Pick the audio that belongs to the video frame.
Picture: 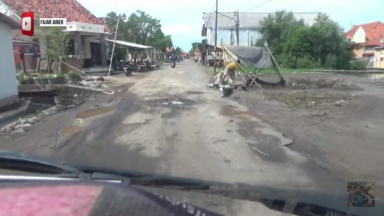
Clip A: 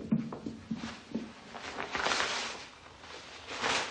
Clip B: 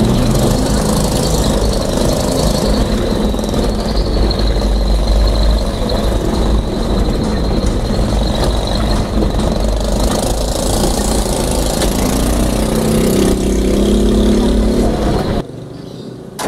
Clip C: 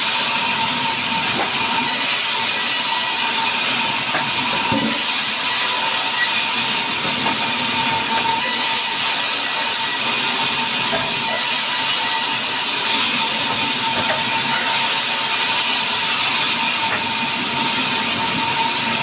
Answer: B